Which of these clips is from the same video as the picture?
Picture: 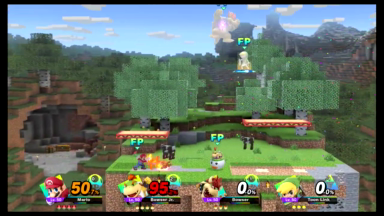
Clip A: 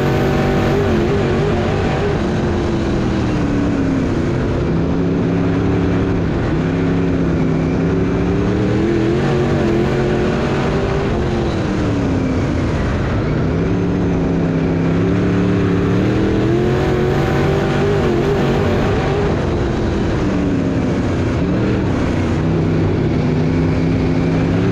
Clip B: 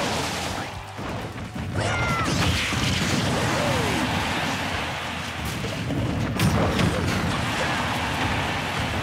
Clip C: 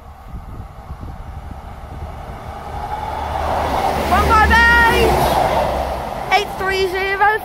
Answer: B